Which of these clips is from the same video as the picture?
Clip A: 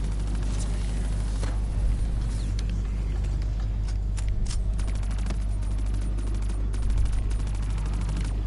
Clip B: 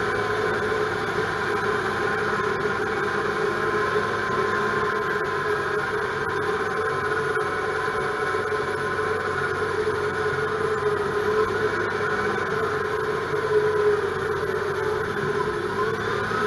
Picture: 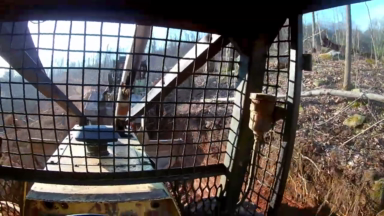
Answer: B